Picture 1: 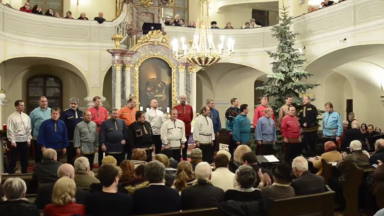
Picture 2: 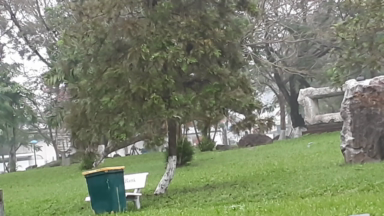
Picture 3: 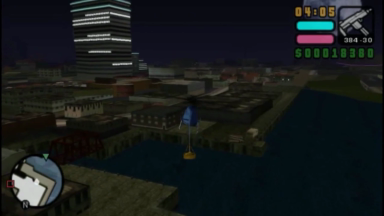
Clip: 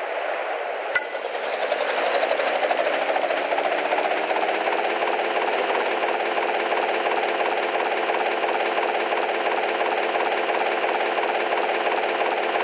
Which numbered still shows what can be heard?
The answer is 3